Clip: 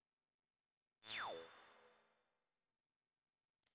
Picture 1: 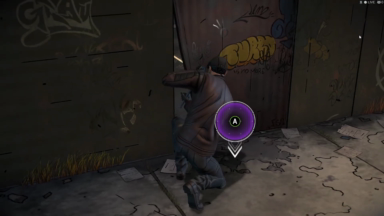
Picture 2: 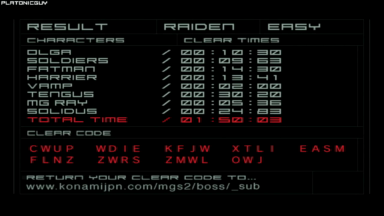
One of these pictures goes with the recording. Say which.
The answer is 2